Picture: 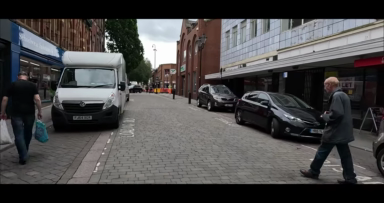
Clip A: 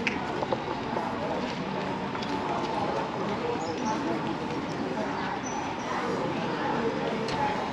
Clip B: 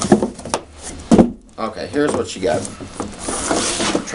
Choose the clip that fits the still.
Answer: A